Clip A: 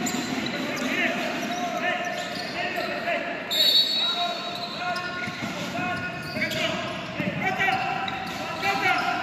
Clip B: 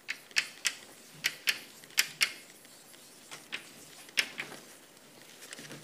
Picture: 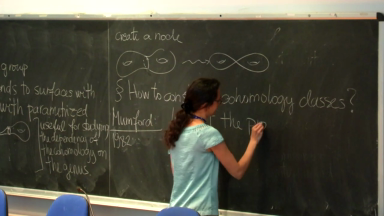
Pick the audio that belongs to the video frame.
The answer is B